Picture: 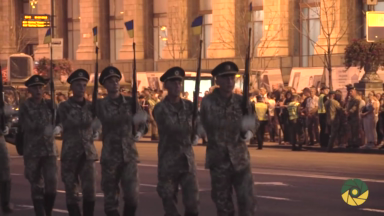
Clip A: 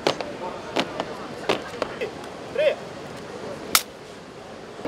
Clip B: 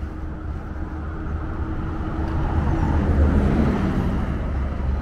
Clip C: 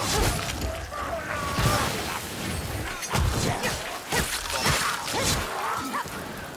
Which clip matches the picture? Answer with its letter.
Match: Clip A